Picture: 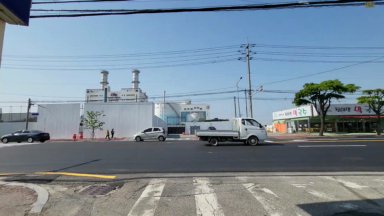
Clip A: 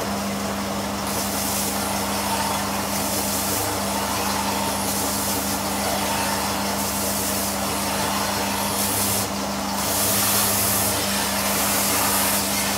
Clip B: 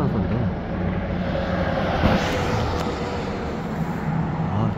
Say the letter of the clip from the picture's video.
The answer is B